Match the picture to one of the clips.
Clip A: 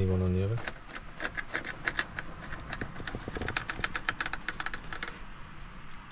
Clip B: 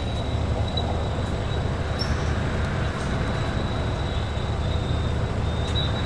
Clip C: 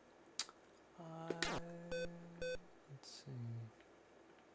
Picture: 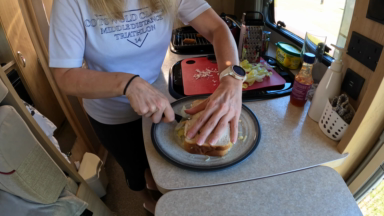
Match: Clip A